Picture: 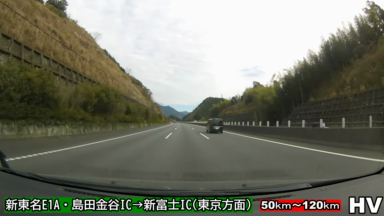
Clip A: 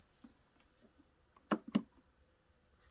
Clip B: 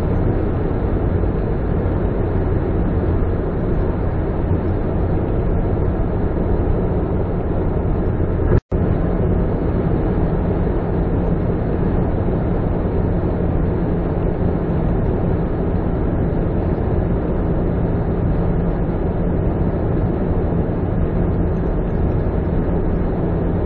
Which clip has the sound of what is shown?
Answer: B